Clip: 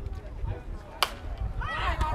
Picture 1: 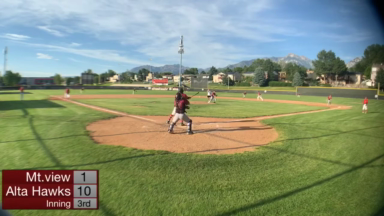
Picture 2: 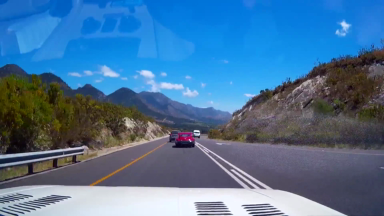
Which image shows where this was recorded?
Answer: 1